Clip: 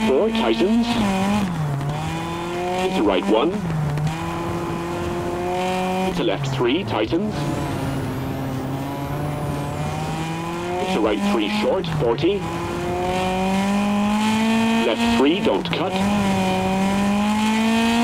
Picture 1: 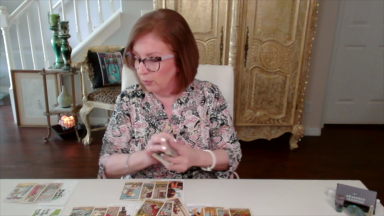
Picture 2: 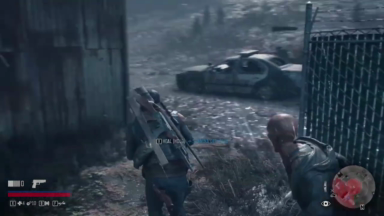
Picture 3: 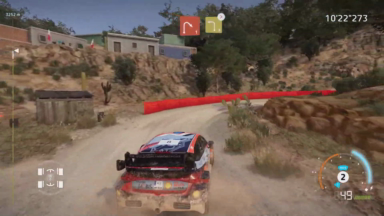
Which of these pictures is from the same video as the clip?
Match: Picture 3